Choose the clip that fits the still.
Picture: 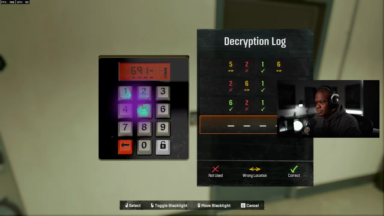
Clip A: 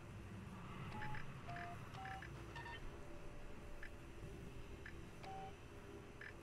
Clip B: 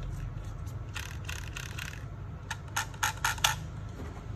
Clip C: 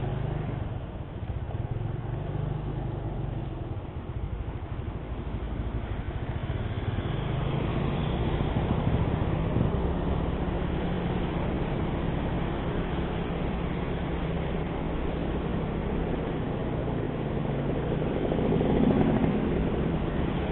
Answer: A